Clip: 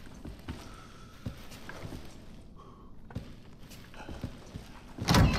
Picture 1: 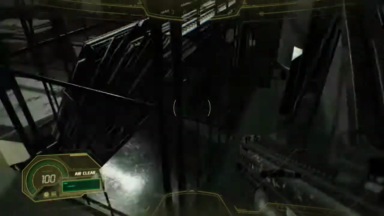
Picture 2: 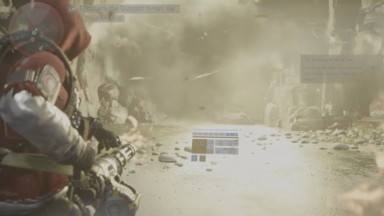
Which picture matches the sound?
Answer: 1